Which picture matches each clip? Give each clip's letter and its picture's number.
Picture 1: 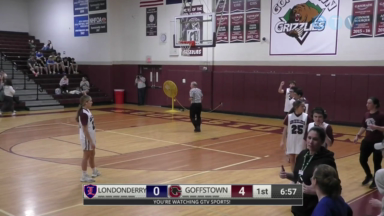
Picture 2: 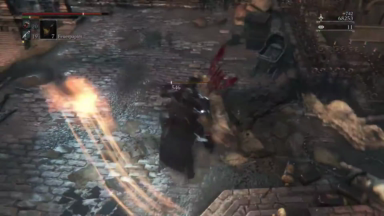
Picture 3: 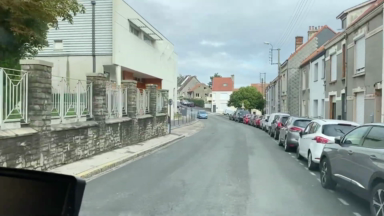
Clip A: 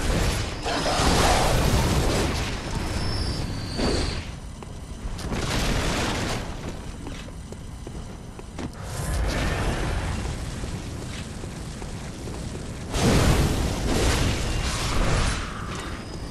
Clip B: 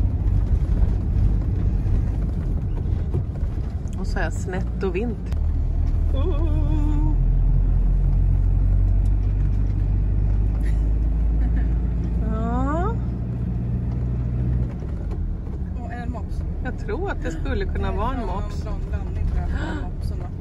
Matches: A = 2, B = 3